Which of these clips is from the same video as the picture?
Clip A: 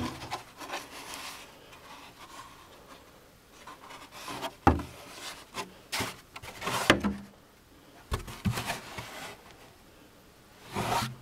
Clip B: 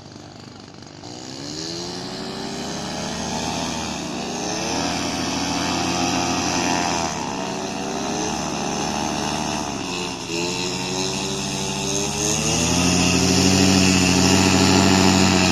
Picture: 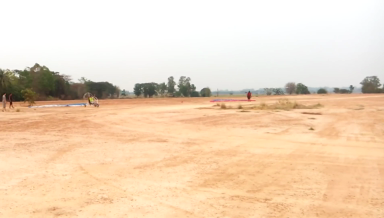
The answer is B